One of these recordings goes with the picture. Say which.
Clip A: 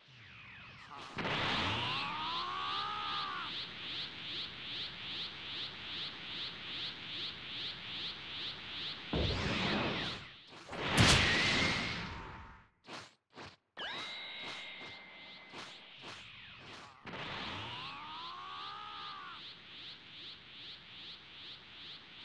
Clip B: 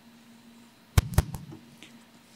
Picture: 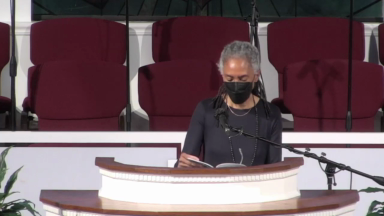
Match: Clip B